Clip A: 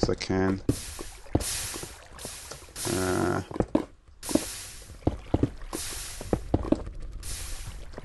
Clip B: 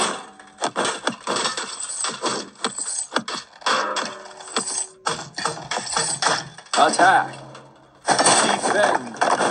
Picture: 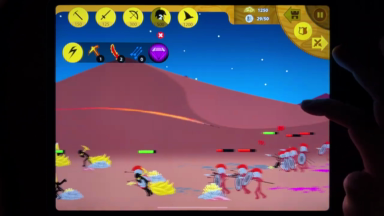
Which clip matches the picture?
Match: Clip B